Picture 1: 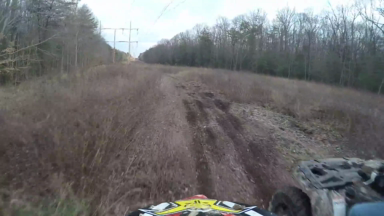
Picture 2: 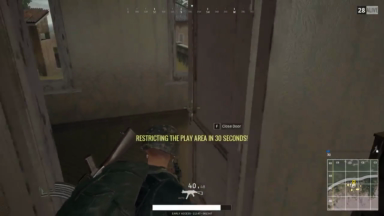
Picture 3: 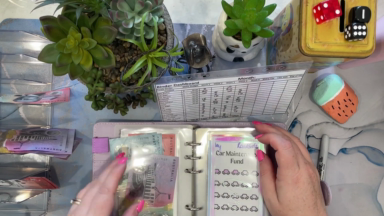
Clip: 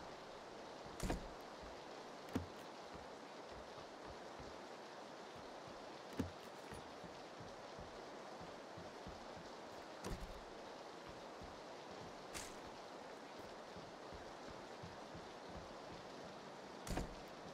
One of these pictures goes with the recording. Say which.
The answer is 2